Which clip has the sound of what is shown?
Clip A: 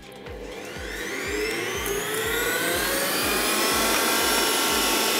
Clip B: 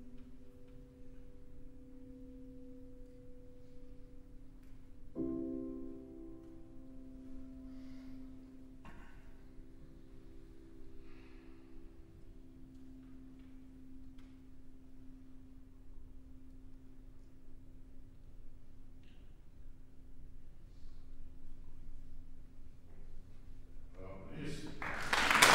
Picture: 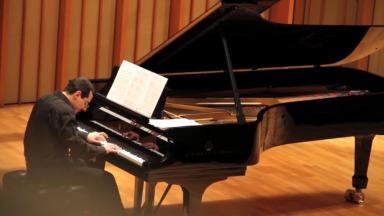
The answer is B